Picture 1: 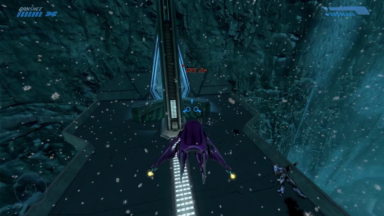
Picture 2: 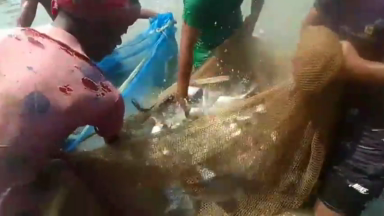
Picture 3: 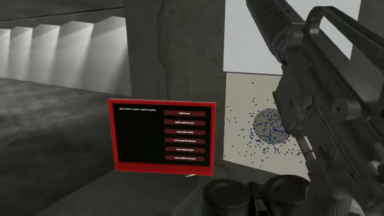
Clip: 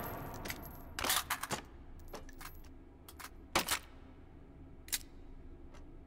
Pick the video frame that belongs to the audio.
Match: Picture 3